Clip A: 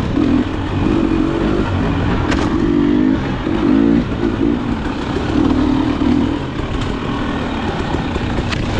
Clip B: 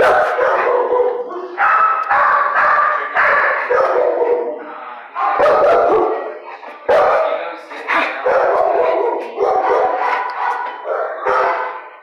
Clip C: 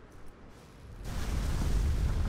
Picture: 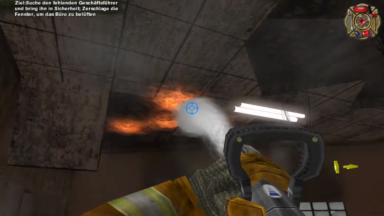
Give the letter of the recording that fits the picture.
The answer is C